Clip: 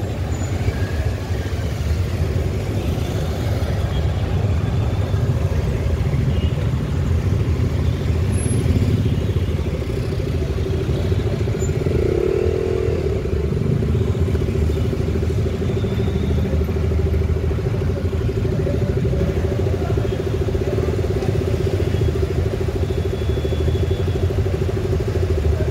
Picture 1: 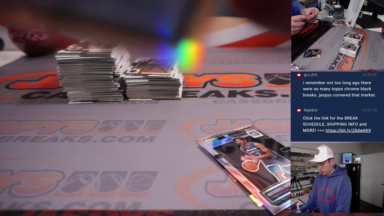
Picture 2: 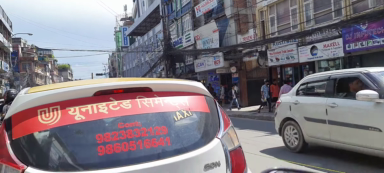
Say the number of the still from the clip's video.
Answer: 2